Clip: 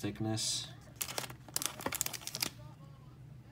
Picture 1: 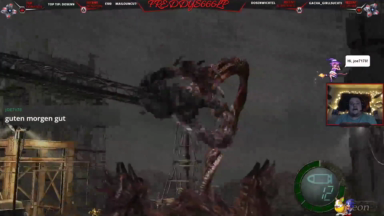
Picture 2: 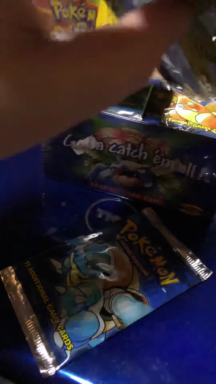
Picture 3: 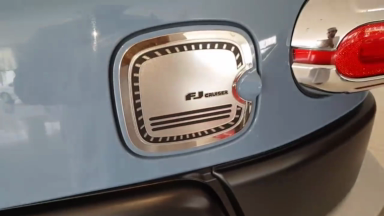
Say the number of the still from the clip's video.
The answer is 2